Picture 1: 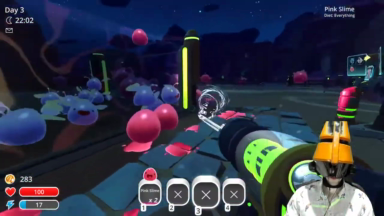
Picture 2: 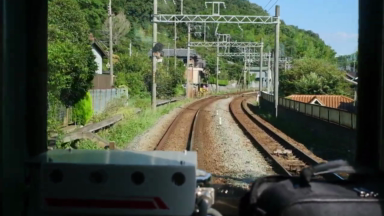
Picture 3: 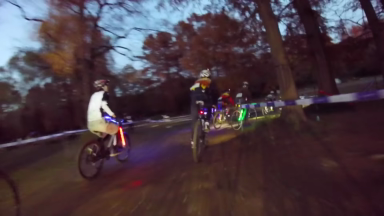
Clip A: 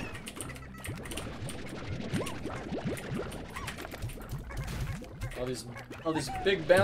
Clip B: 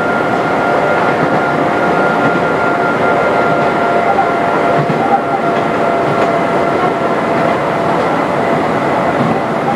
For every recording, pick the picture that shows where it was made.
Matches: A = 1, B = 2